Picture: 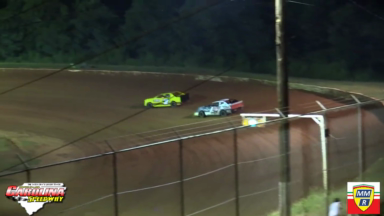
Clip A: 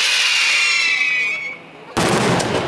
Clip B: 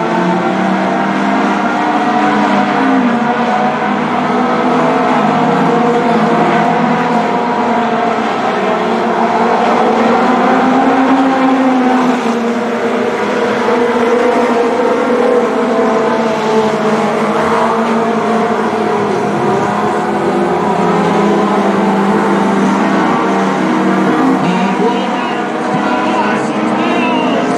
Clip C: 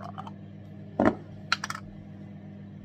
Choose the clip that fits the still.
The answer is B